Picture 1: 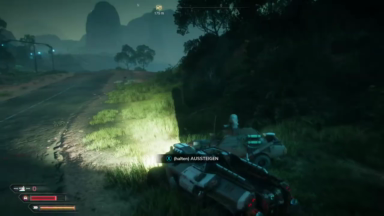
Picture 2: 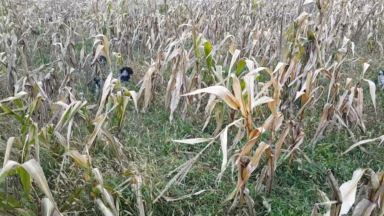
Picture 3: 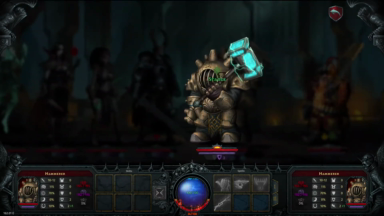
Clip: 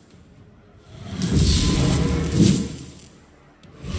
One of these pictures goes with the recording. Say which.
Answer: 3